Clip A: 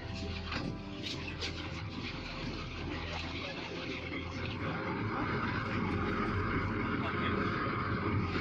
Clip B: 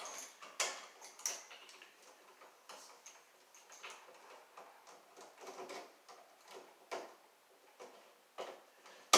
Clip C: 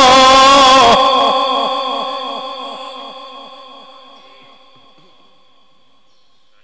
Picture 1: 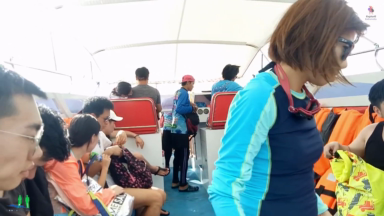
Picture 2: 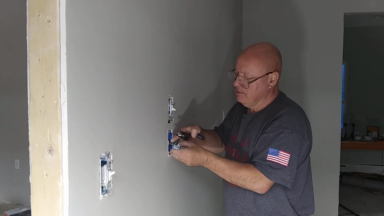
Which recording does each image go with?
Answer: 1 A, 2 B